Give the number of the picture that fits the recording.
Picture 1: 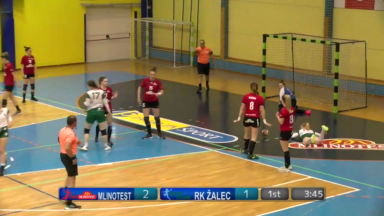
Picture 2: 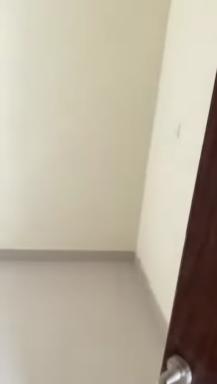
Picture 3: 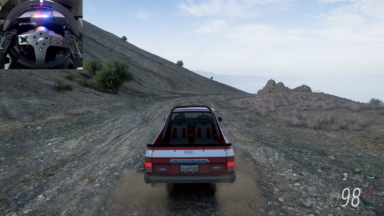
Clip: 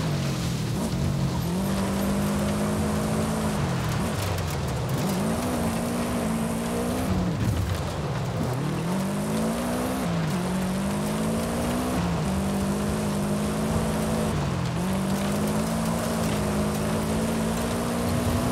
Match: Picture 3